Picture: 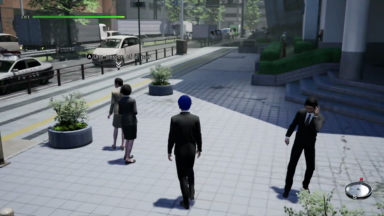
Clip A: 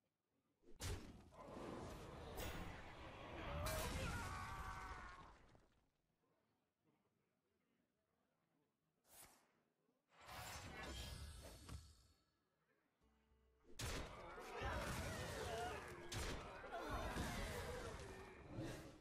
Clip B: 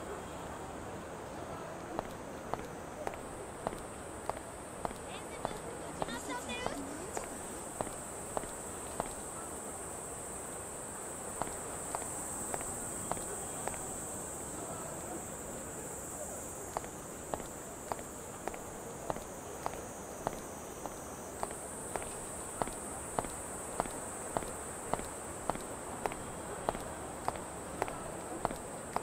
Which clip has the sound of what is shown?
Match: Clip B